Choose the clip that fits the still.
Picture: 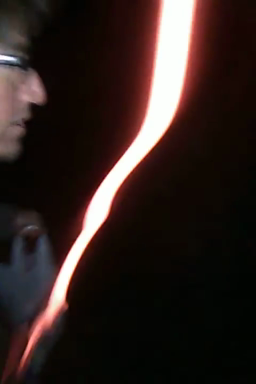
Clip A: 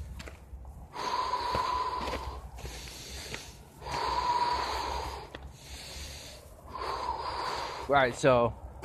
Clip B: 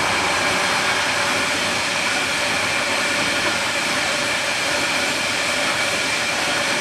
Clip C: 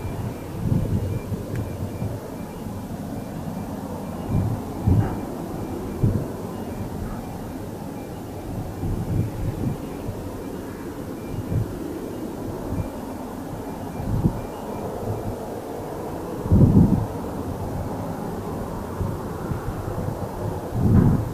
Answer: A